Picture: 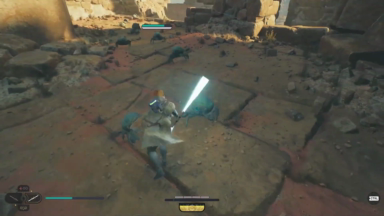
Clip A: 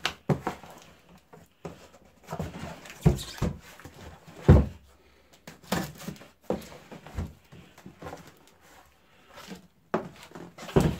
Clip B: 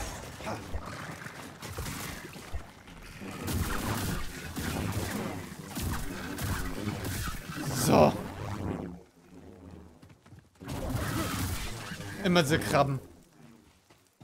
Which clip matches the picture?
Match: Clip B